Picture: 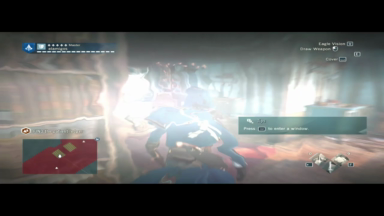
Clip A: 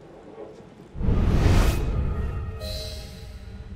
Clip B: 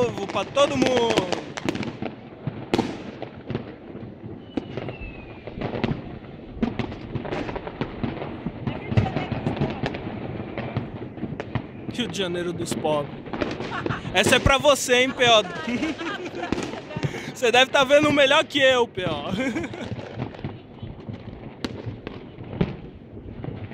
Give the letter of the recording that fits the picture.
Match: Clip A